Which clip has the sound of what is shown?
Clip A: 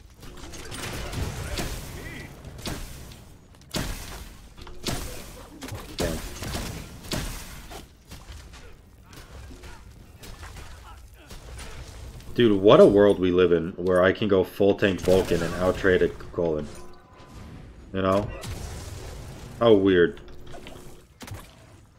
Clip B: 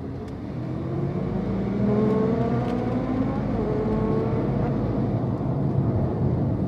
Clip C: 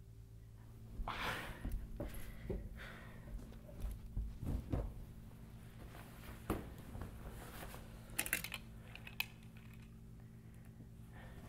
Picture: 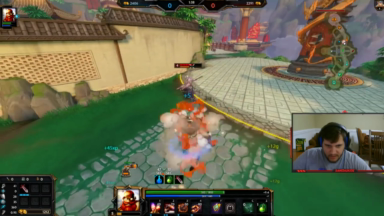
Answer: A